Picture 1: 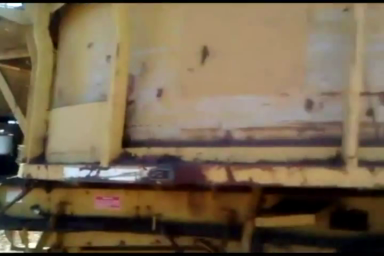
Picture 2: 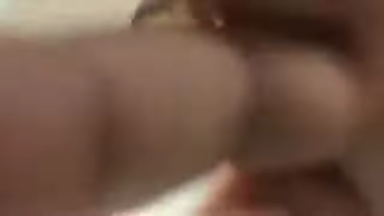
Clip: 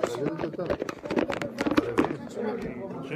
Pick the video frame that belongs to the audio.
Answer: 2